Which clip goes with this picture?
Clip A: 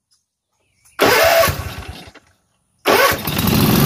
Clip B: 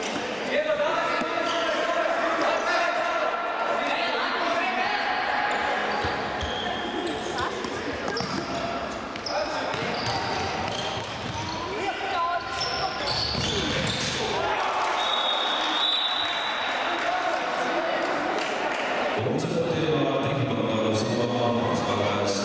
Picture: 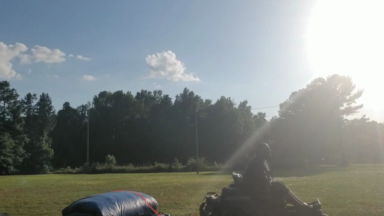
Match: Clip A